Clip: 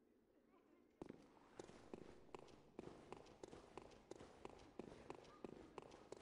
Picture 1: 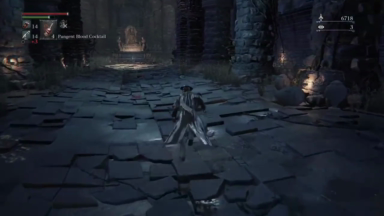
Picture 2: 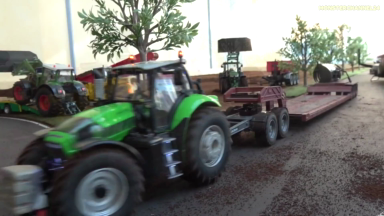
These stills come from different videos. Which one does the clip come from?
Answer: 1